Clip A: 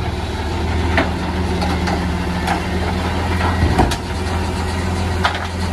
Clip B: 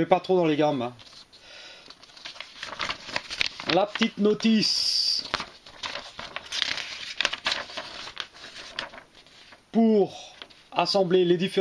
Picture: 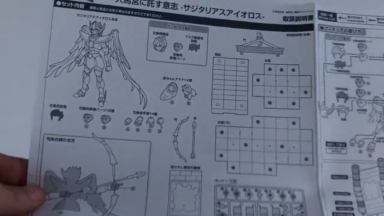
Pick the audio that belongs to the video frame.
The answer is B